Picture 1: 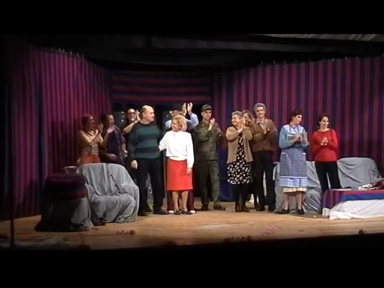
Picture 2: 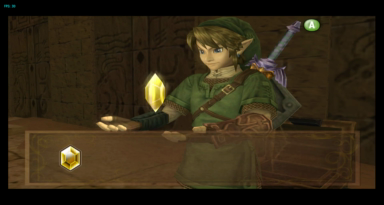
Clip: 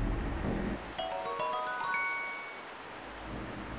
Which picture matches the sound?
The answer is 2